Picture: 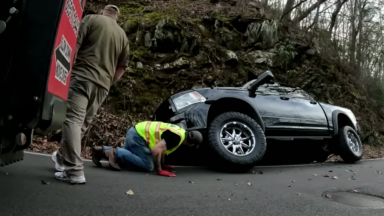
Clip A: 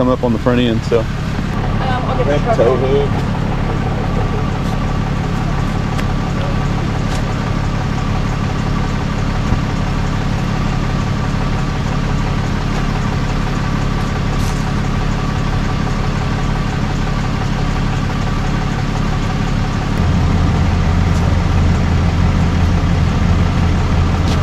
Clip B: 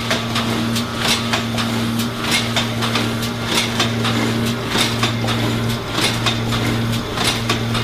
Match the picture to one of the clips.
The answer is A